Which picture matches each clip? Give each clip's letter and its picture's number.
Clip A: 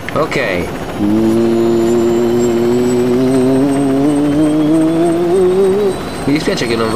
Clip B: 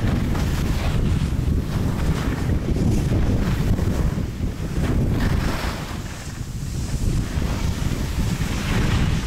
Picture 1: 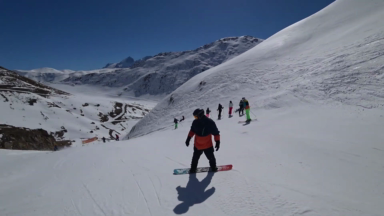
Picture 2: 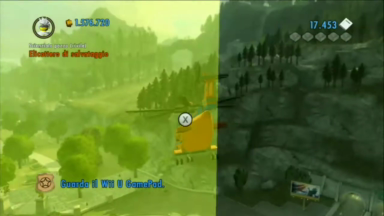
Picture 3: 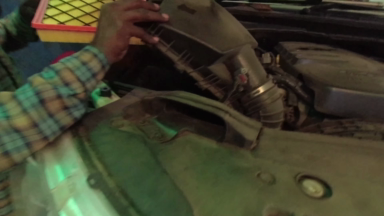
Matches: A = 2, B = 1